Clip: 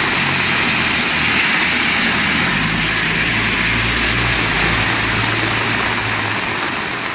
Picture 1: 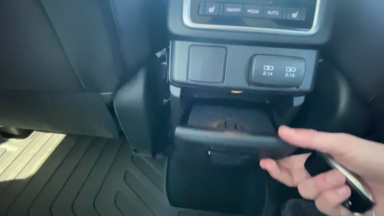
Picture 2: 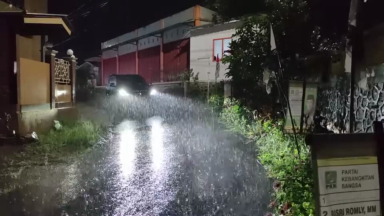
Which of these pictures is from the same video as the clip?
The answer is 2